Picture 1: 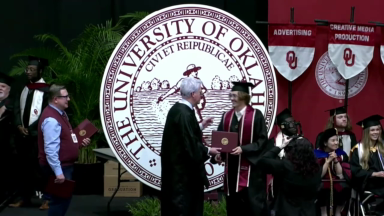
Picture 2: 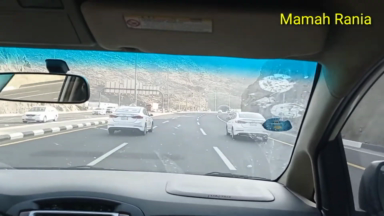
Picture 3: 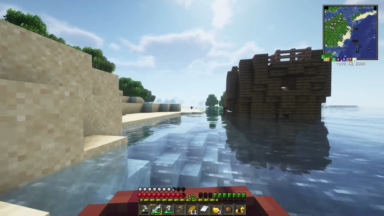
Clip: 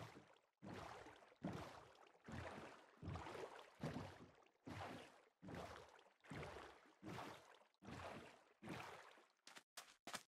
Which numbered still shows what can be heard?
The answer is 3